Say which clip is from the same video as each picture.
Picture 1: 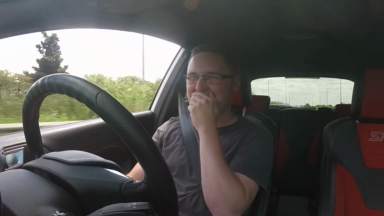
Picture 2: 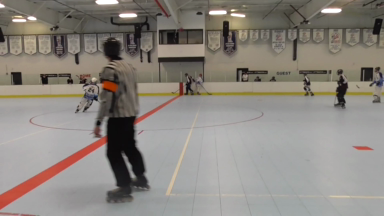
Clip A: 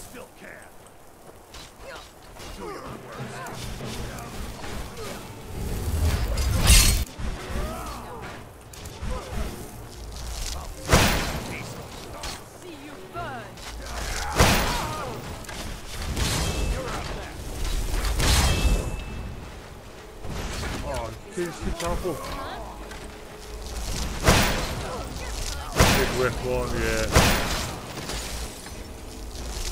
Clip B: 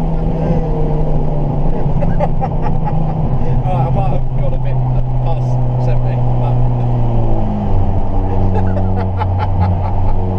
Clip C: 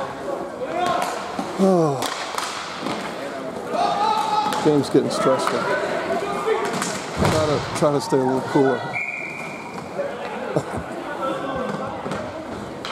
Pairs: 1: B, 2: C